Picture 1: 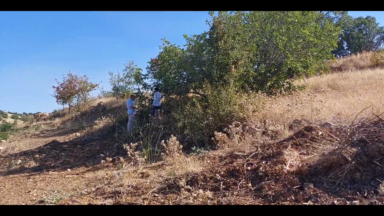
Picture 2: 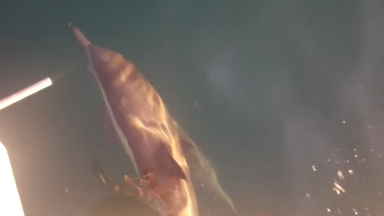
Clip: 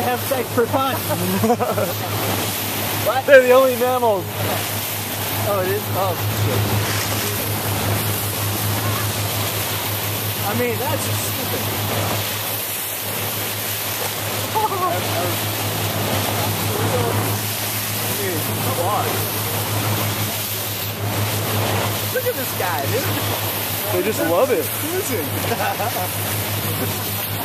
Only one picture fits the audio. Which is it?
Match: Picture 2